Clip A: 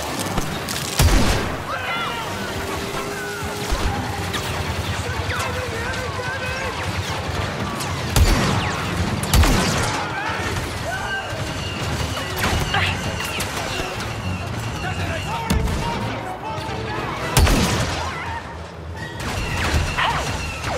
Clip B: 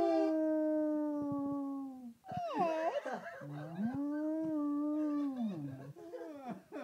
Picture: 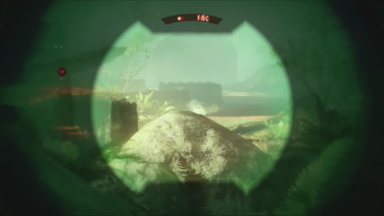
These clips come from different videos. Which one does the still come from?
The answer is A